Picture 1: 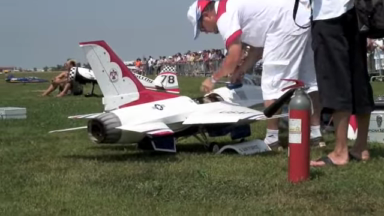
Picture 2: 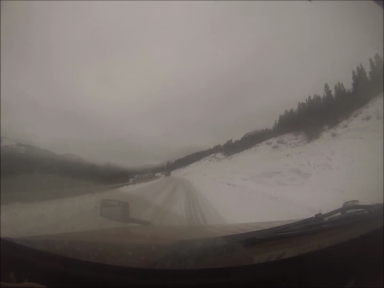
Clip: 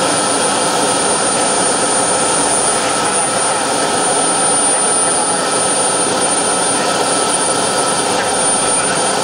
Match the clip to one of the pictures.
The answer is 1